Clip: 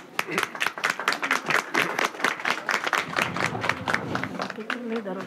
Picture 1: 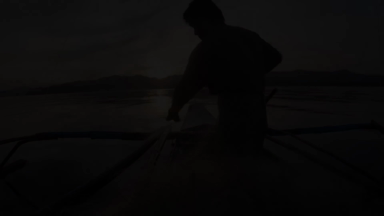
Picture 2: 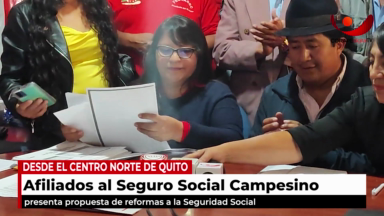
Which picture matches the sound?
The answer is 2